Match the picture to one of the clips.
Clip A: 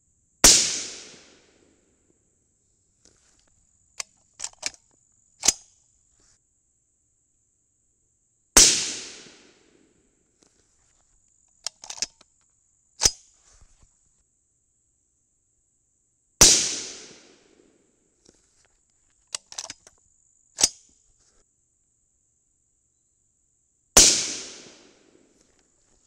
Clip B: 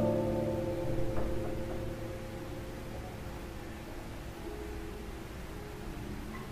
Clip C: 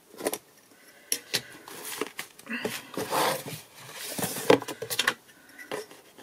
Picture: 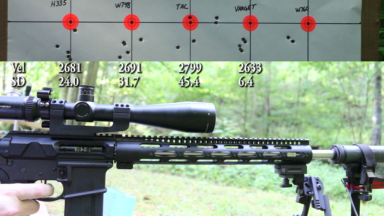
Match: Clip A